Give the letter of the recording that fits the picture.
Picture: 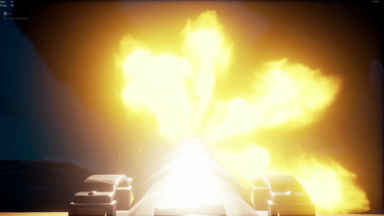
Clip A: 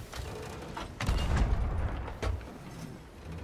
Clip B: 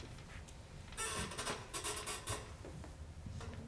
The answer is A